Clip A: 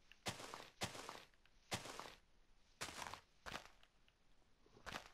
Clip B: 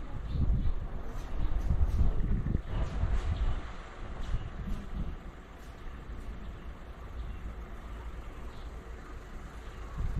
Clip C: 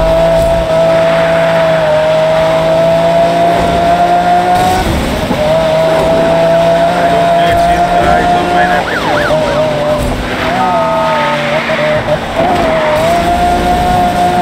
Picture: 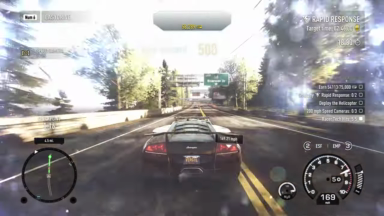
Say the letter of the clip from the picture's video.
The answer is C